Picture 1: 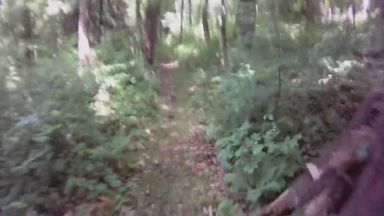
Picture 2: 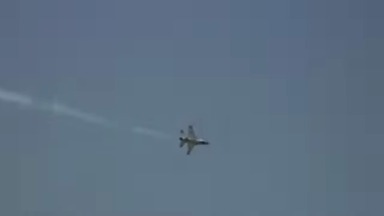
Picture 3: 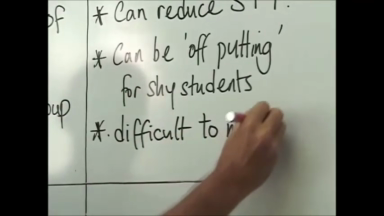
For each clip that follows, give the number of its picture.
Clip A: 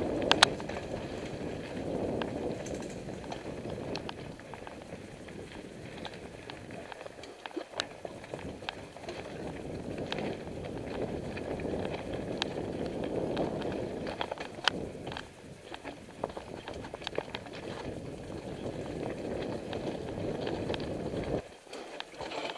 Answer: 1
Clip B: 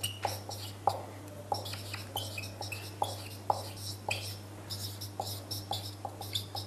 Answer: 3